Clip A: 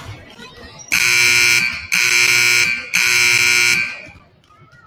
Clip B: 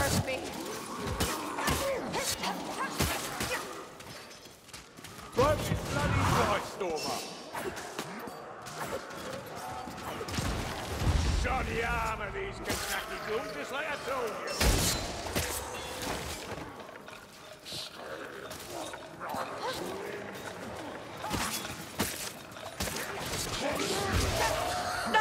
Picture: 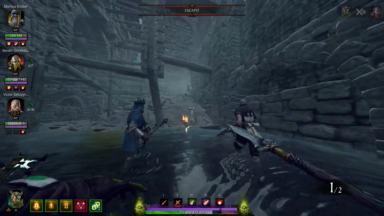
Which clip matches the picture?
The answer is B